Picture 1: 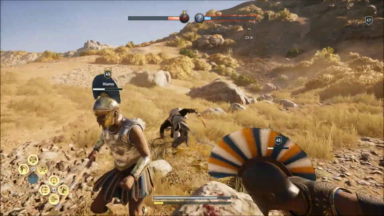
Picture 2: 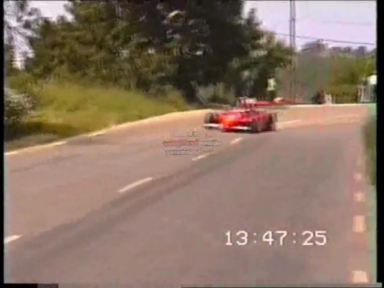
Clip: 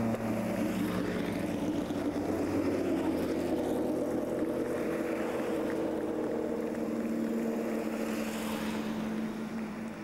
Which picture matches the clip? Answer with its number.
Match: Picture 2